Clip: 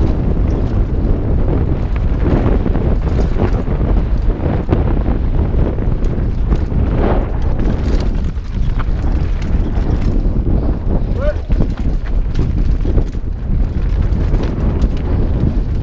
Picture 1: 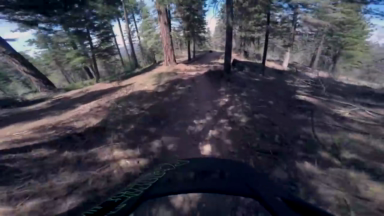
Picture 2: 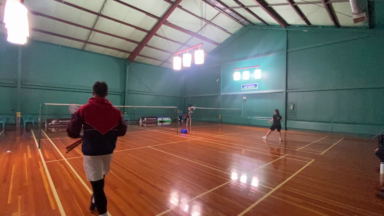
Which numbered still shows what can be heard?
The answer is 1